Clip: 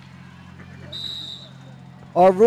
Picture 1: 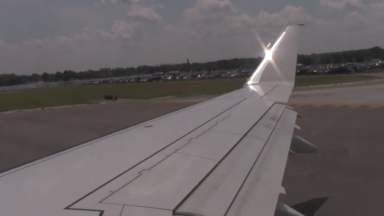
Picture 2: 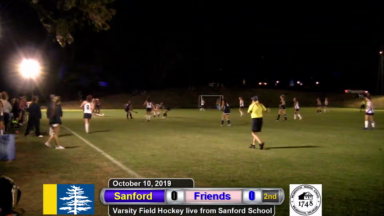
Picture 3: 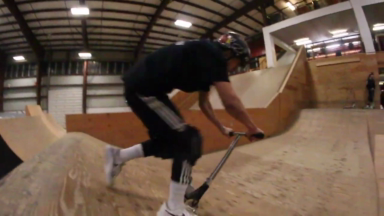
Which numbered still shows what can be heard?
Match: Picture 2